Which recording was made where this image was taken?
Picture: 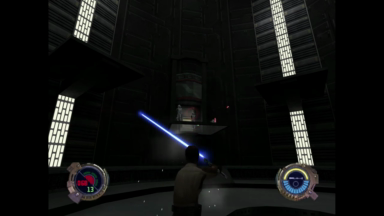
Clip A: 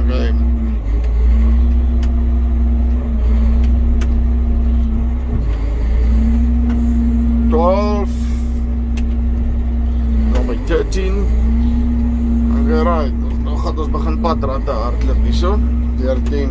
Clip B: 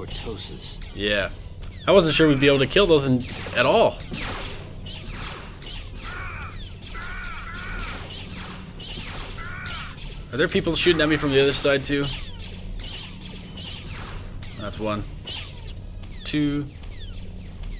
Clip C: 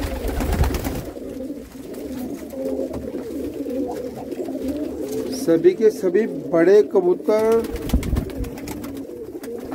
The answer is B